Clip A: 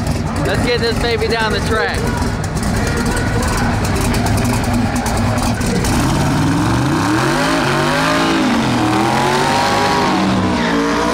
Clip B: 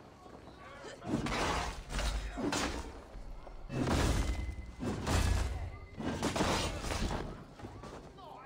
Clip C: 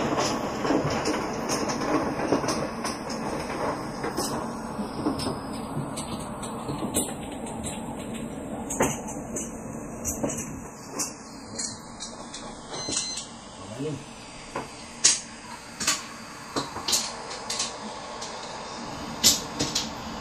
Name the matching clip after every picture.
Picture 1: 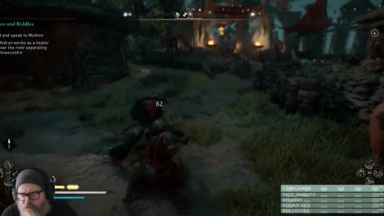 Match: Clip B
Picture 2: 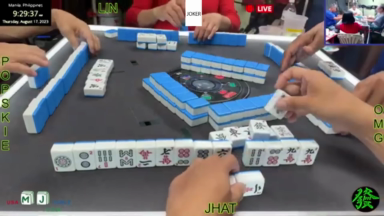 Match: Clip C